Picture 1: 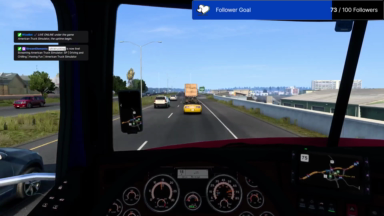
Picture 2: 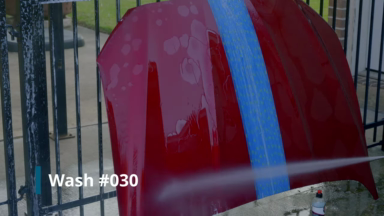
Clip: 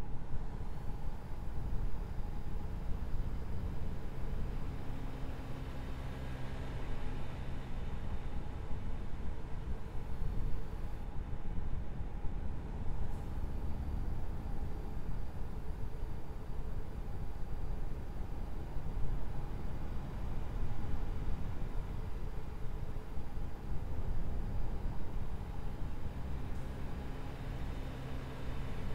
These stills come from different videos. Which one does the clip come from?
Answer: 1